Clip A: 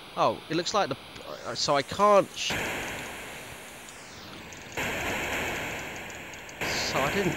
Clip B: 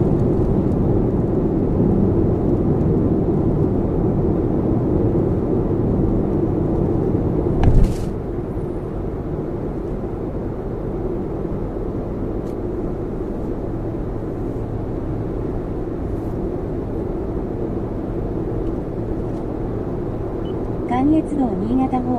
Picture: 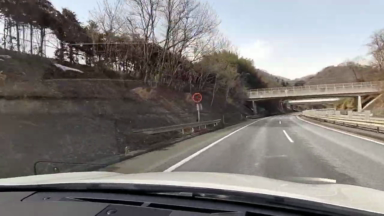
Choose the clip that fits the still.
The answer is B